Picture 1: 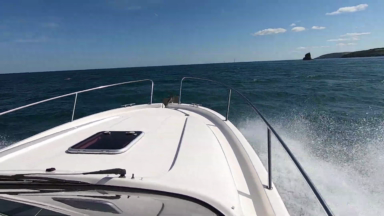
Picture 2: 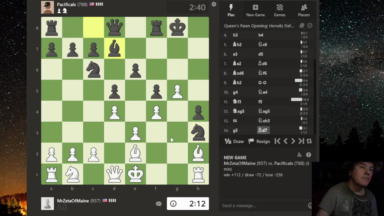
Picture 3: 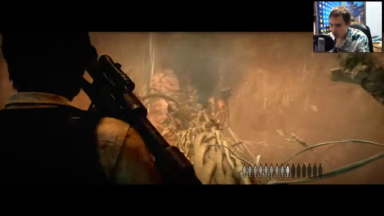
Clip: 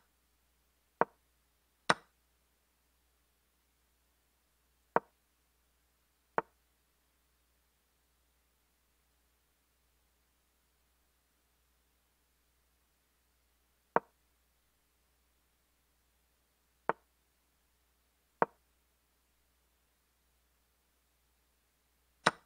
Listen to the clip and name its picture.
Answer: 2